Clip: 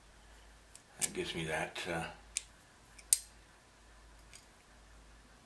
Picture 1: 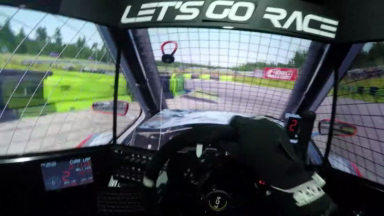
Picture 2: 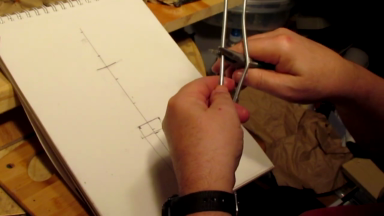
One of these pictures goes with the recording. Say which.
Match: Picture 2